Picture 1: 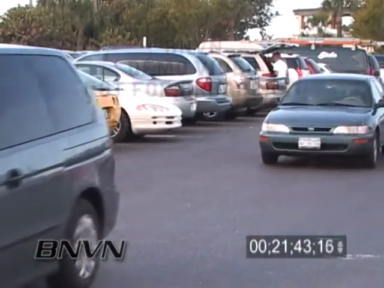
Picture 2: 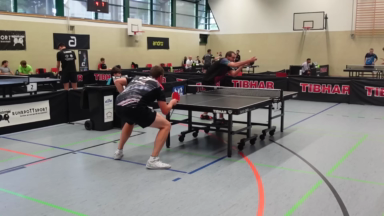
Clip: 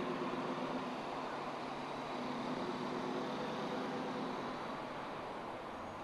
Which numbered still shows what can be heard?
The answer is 1